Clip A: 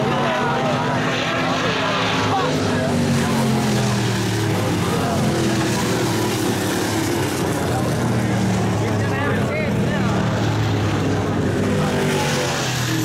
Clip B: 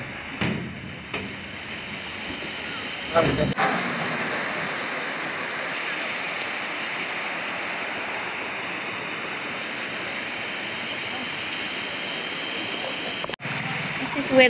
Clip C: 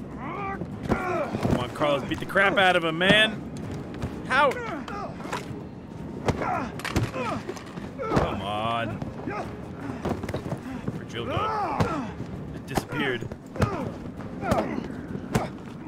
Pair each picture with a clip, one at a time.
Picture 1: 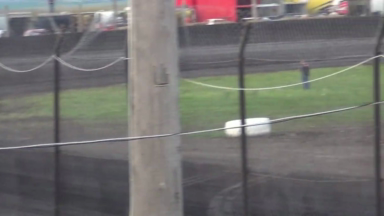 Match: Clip A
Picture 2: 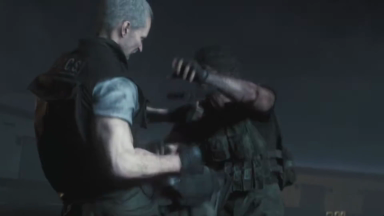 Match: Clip C